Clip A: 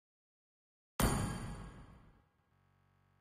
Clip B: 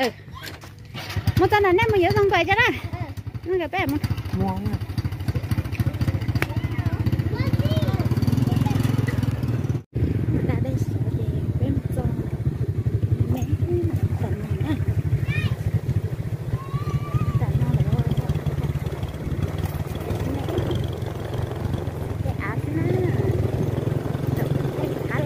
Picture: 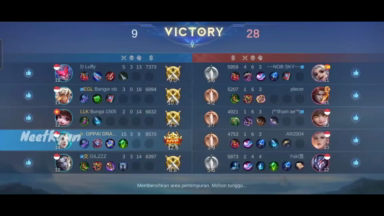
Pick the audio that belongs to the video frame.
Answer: A